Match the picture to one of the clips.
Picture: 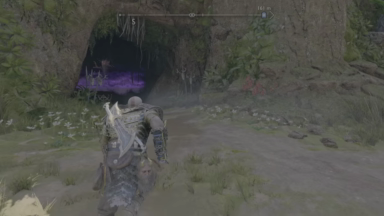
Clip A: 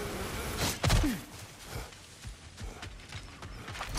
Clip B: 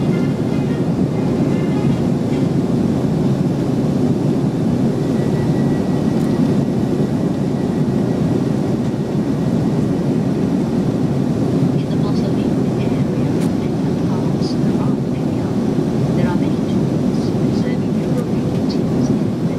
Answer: A